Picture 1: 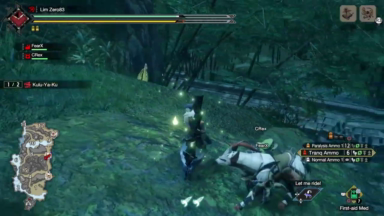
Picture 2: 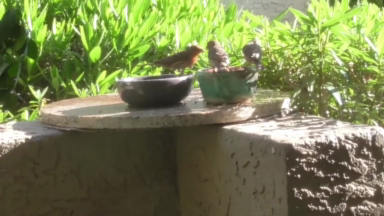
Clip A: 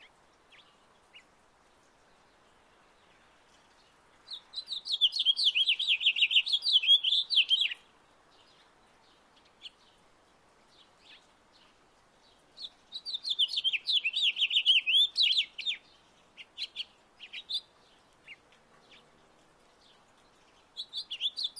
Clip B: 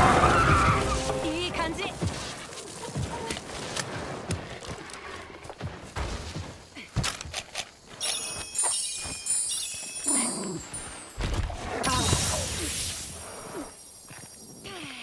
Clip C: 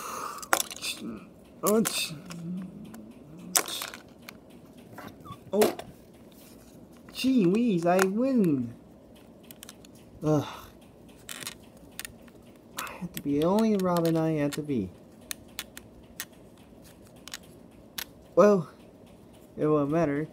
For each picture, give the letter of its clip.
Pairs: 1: B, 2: A